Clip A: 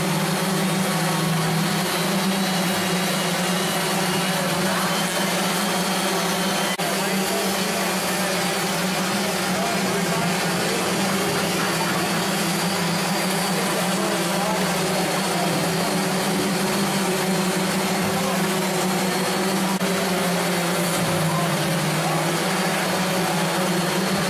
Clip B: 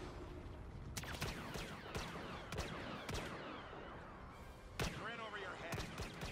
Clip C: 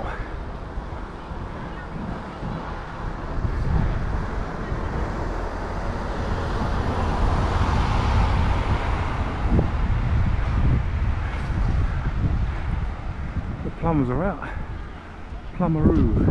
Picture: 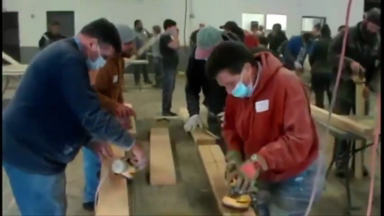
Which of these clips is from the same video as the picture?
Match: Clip A